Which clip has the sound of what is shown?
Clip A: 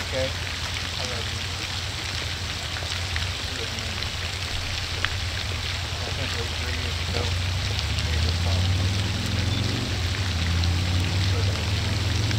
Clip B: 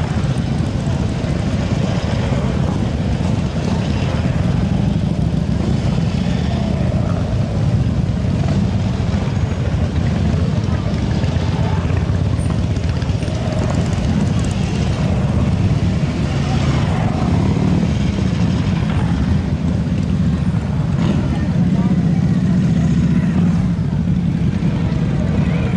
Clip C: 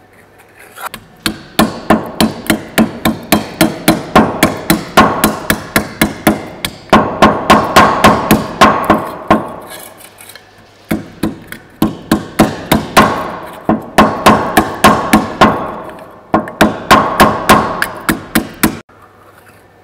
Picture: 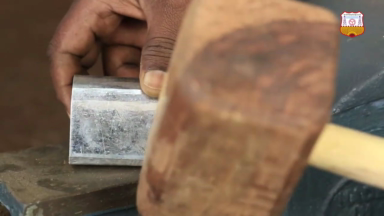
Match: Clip C